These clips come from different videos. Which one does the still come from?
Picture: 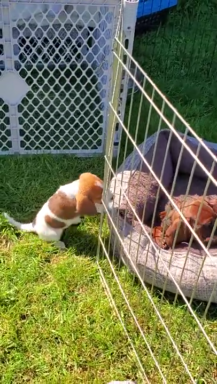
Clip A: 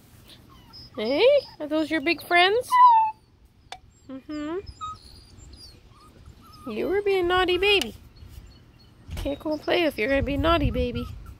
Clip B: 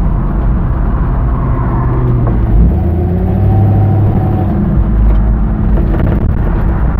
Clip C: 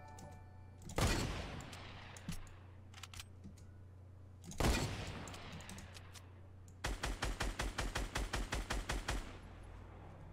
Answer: A